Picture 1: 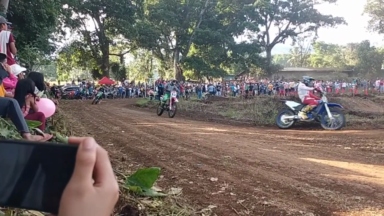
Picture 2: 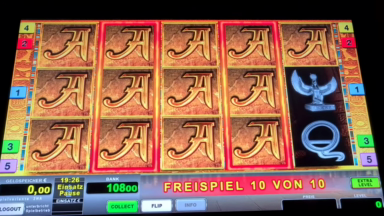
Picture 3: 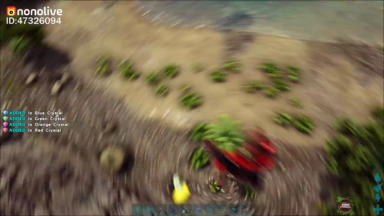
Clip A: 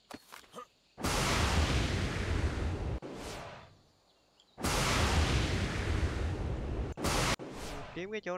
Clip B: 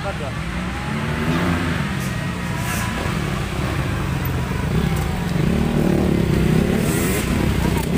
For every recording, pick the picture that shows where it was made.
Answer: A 3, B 1